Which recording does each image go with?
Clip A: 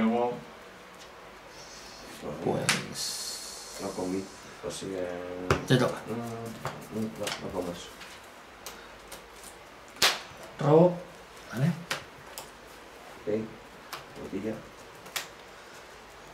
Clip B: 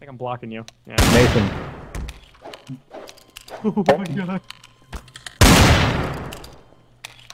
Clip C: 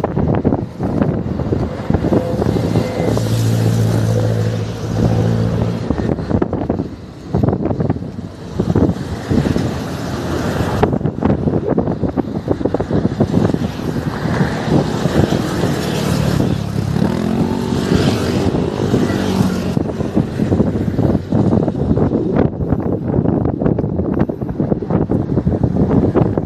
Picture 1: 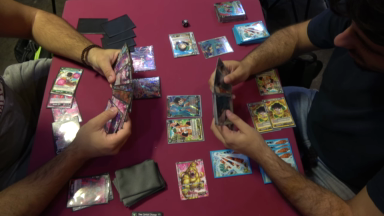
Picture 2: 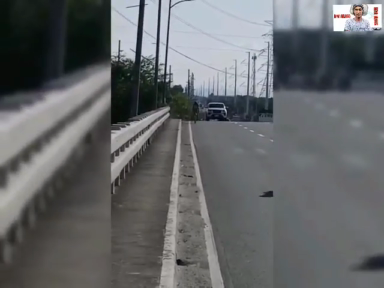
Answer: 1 A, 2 C